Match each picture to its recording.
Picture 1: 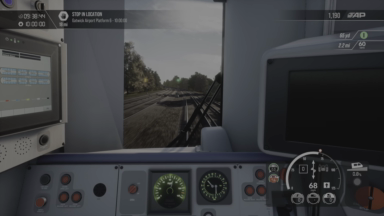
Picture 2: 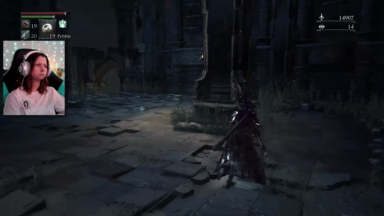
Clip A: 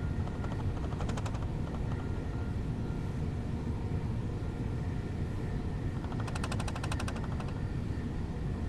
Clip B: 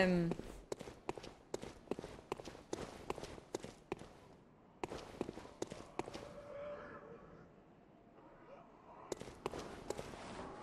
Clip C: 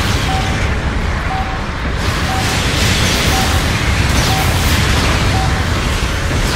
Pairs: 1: A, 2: B